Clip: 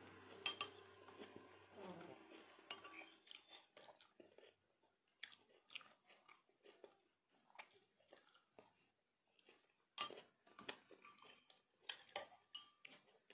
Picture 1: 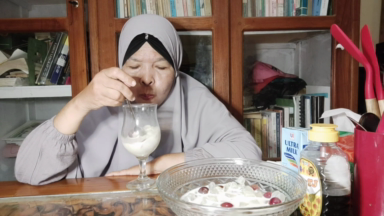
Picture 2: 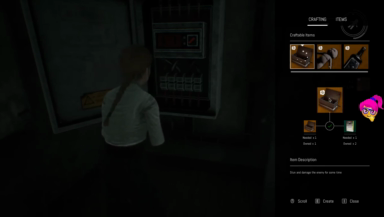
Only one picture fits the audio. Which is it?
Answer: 1